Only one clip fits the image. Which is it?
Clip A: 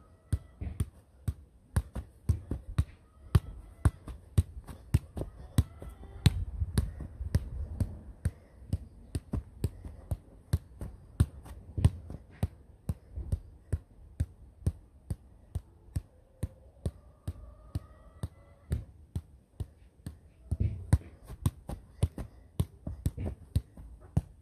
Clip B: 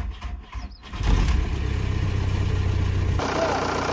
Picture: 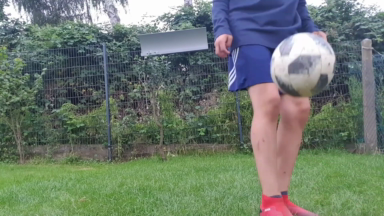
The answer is A